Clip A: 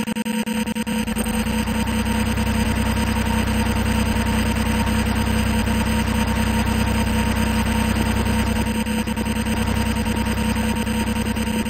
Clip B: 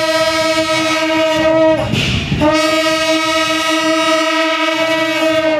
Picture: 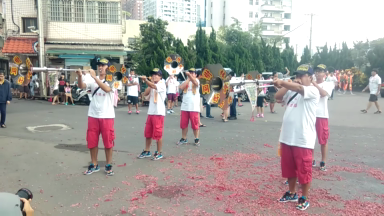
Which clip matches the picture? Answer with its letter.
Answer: B